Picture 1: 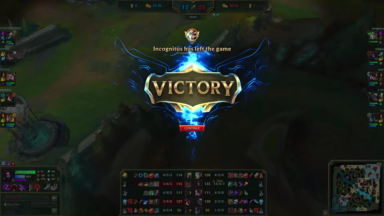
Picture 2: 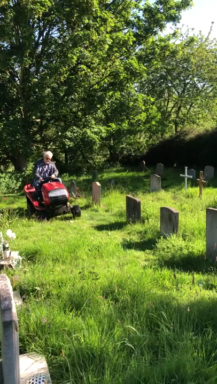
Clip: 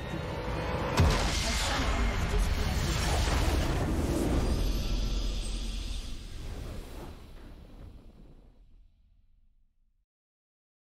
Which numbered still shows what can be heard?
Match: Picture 1